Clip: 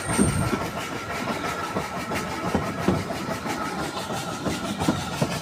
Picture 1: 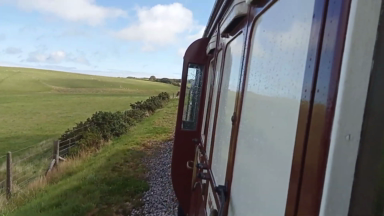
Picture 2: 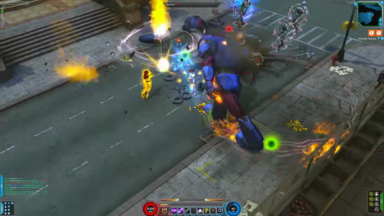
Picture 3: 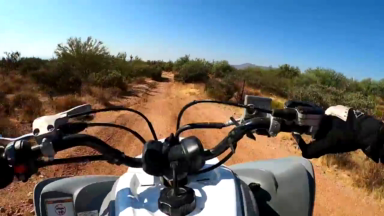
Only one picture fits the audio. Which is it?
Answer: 1